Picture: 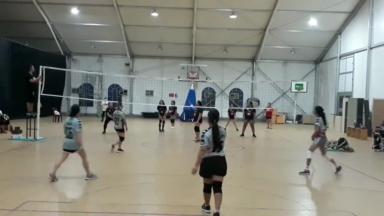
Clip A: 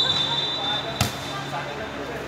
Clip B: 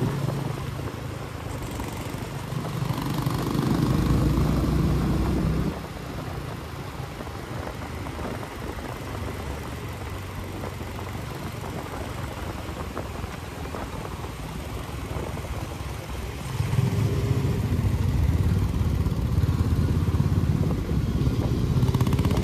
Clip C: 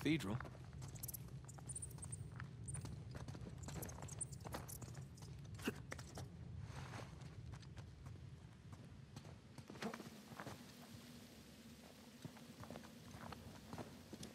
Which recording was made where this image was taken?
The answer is A